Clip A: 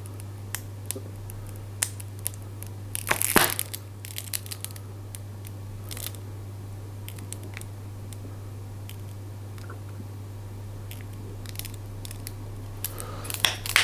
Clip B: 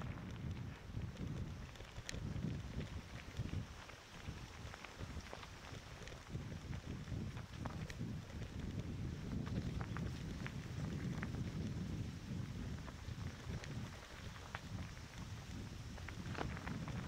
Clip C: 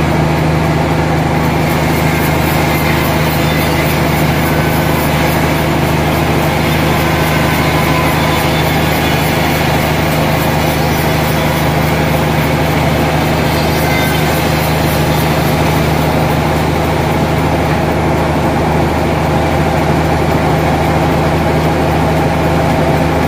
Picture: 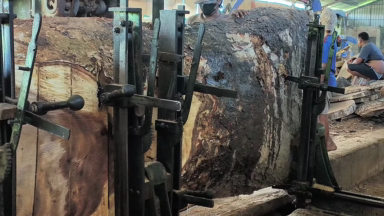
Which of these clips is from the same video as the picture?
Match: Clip C